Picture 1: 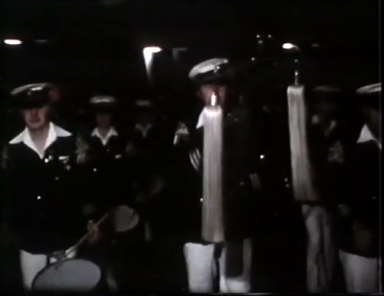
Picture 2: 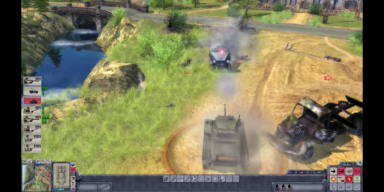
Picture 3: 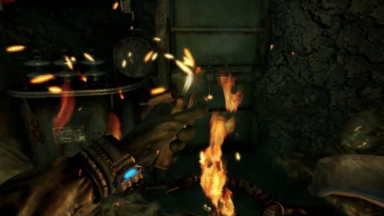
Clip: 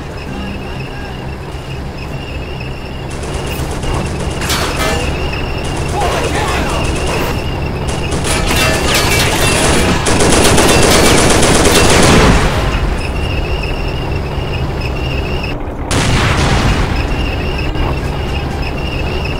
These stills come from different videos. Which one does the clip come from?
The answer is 2